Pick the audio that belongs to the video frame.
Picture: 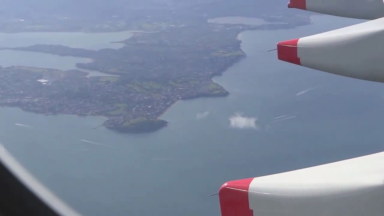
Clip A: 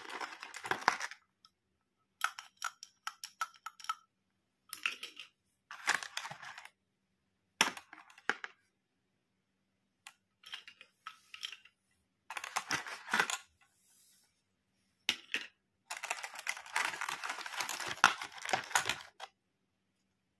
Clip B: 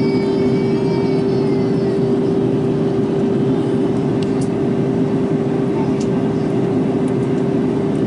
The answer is B